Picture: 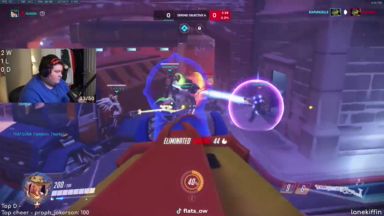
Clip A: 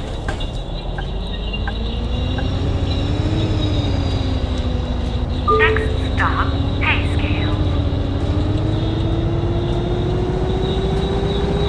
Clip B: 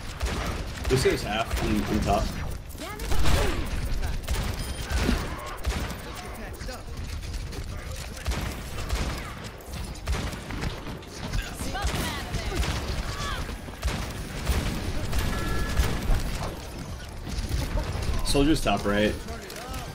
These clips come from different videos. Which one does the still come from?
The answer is B